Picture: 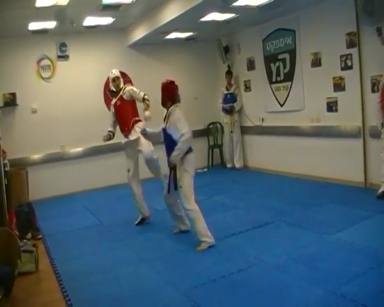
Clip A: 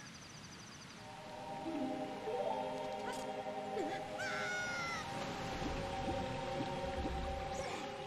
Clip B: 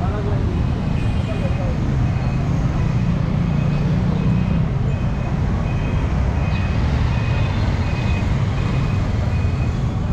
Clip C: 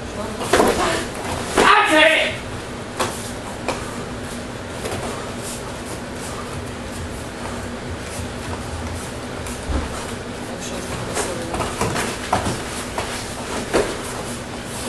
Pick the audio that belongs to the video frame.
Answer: C